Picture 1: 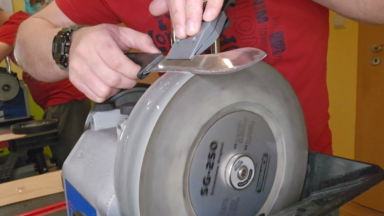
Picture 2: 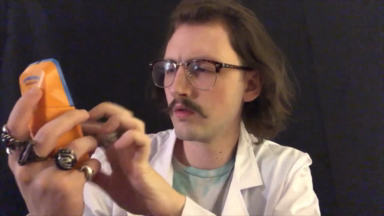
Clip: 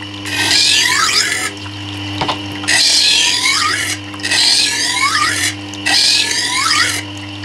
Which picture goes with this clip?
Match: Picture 1